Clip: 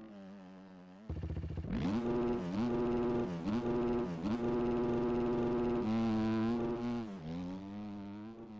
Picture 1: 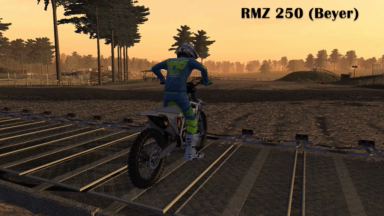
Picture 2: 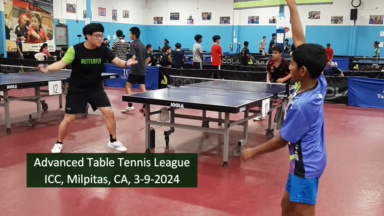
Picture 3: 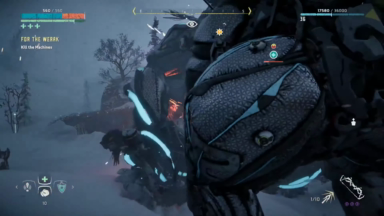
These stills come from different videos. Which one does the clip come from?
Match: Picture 1